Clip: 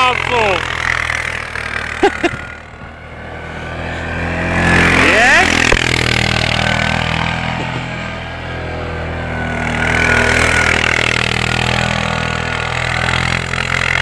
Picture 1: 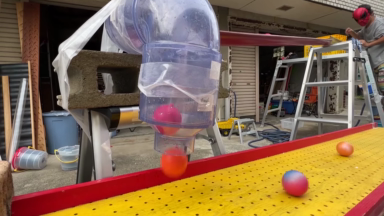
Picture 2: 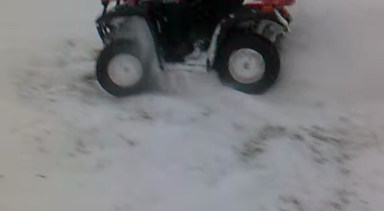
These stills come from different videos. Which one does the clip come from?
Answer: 2